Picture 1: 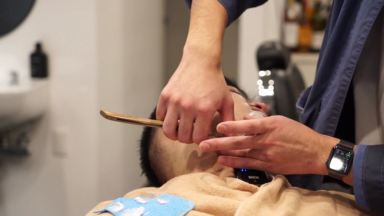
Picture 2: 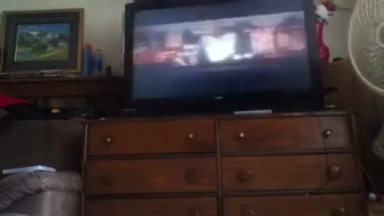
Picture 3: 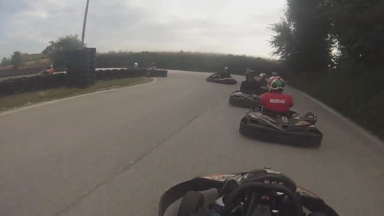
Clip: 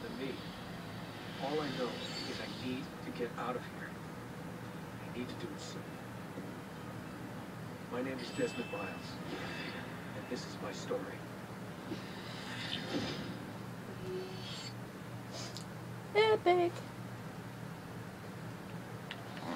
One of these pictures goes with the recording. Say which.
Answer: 2